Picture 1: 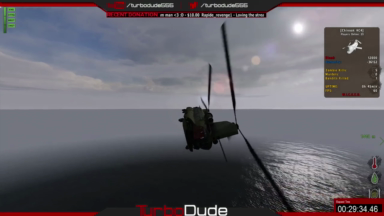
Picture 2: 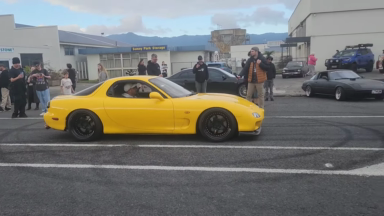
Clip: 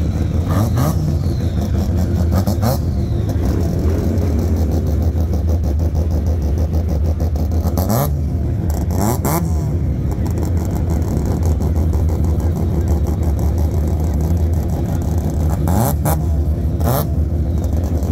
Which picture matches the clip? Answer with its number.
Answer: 2